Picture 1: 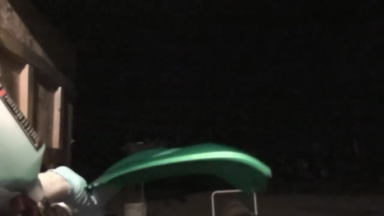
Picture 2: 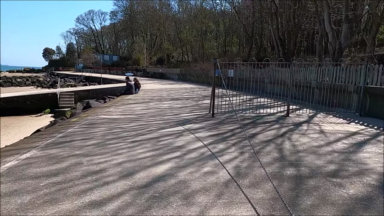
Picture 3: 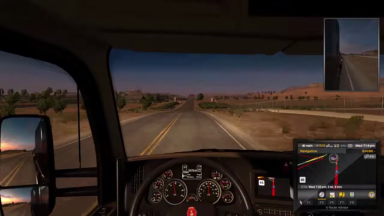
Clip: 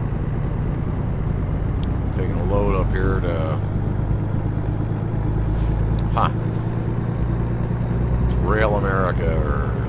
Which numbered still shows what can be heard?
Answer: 3